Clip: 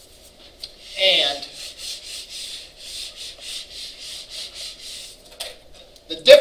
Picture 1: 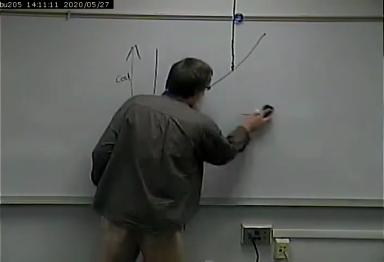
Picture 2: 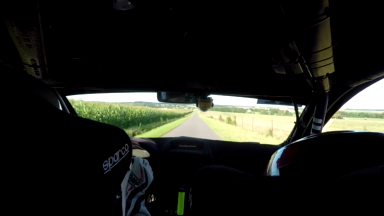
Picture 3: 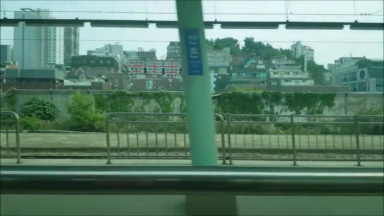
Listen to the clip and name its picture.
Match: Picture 1